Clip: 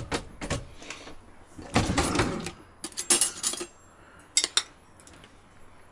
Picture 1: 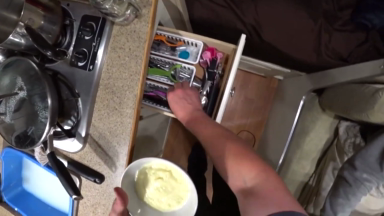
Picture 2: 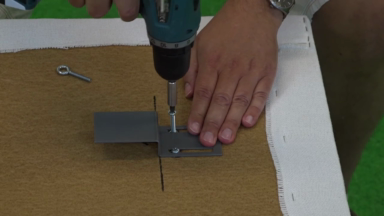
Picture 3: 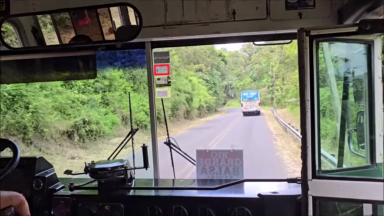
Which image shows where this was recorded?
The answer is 1